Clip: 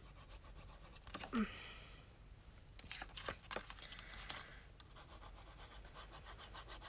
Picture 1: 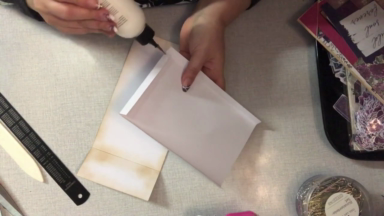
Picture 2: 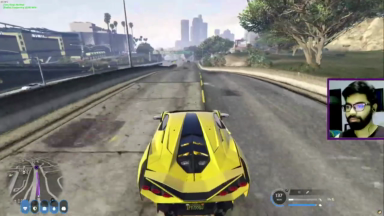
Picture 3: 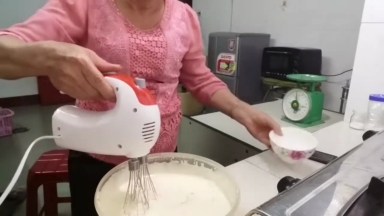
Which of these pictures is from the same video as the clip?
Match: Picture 1